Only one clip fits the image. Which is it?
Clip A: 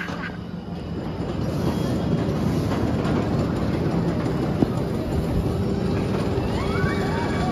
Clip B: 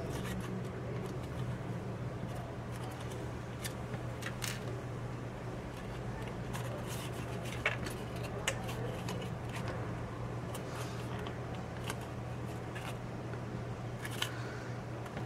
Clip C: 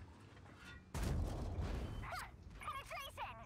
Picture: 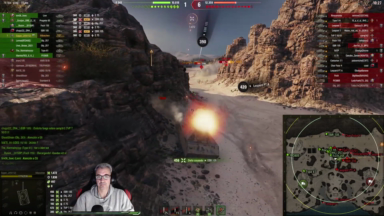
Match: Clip C